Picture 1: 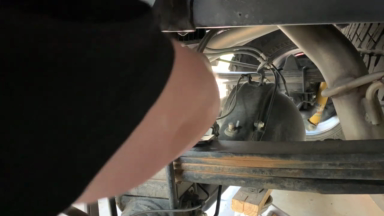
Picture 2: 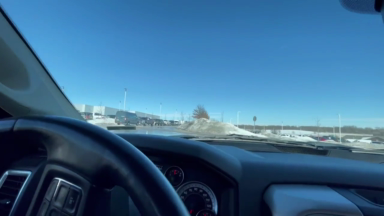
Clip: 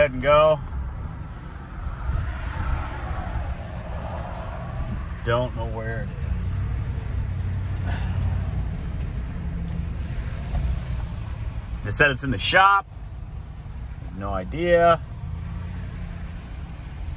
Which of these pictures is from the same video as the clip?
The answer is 2